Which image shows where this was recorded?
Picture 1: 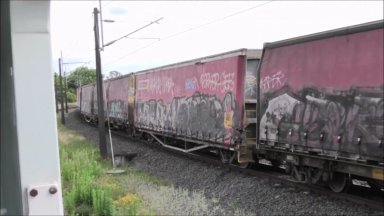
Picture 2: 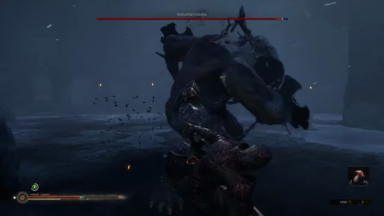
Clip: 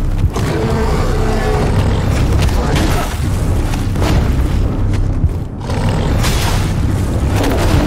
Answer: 2